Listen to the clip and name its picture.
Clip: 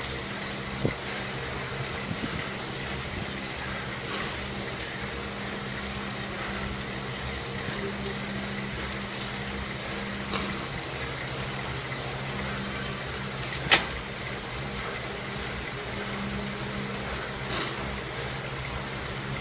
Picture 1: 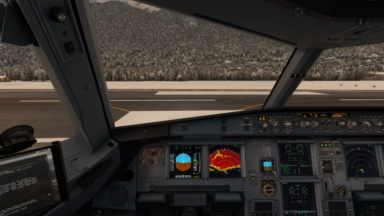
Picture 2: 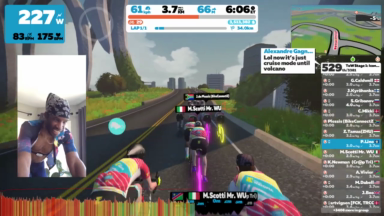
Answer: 2